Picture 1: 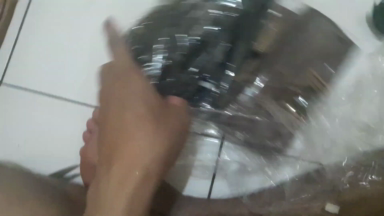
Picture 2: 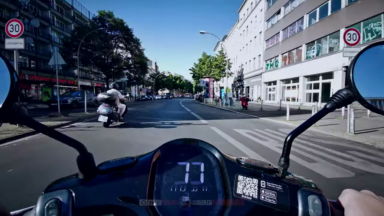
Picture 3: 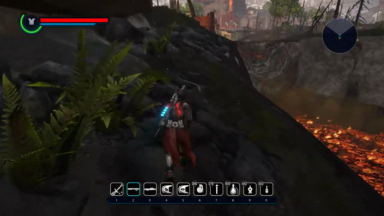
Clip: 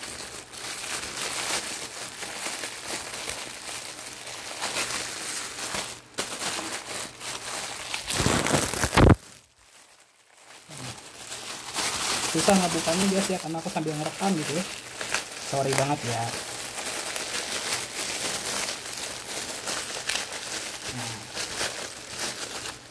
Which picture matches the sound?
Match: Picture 1